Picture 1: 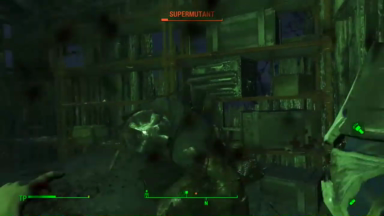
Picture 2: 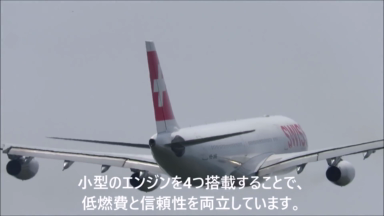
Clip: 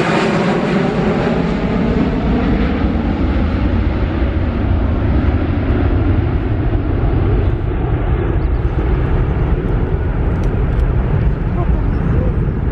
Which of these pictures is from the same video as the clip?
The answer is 2